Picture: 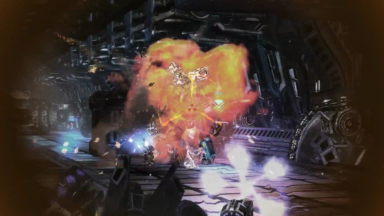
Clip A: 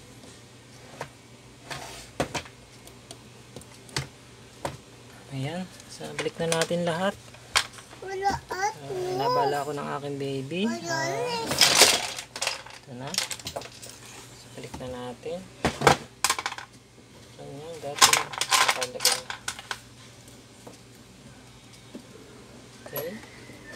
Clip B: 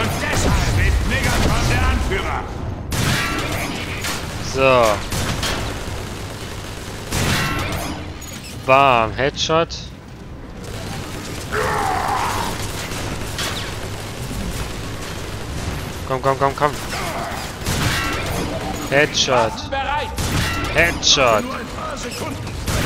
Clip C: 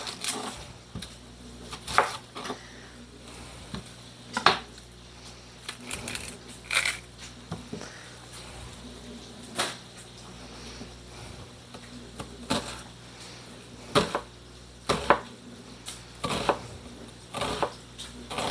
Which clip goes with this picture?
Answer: B